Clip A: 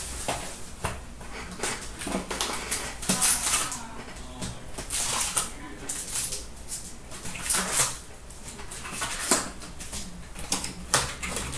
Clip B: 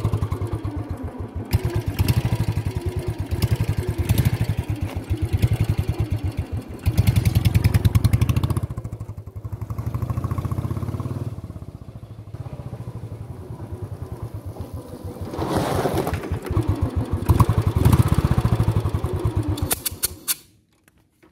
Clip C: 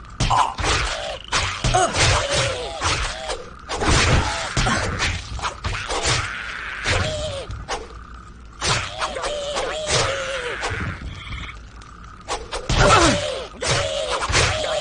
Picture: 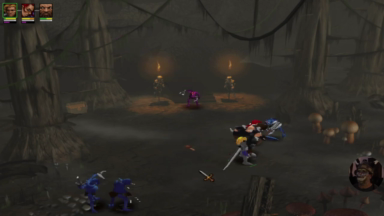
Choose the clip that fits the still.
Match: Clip C